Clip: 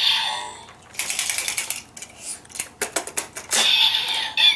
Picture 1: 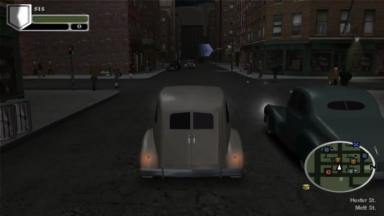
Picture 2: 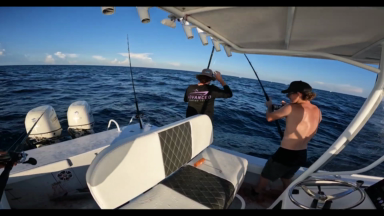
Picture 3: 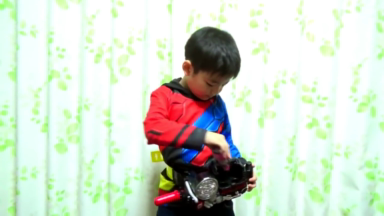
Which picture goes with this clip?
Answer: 3